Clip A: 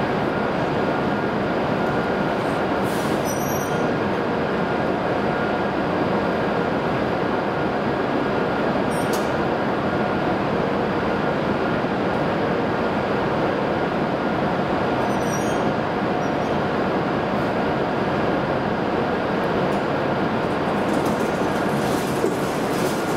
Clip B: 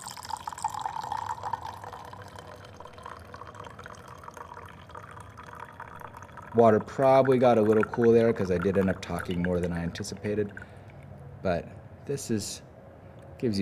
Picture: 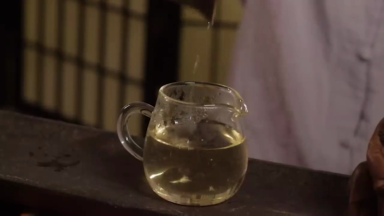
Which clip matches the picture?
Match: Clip B